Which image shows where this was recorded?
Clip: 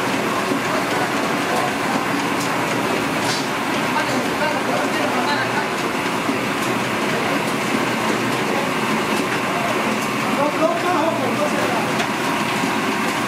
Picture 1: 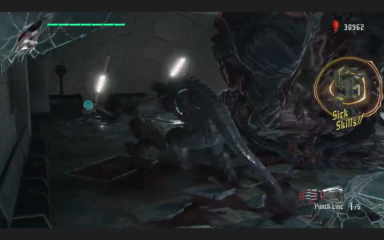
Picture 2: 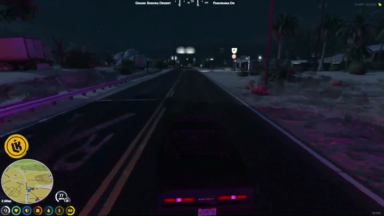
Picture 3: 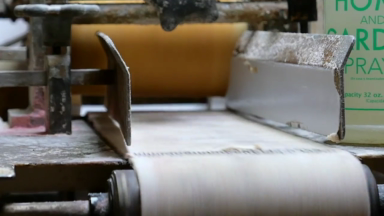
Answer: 3